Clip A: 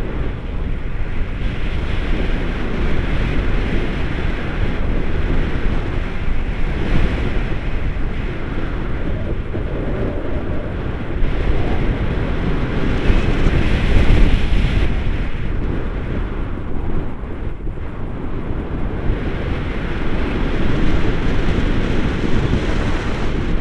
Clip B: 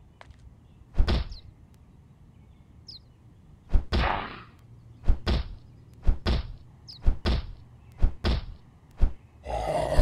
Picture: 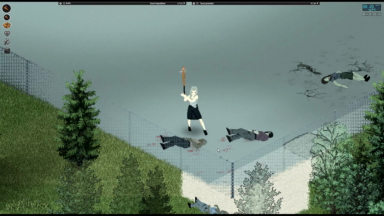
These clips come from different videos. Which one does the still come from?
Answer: B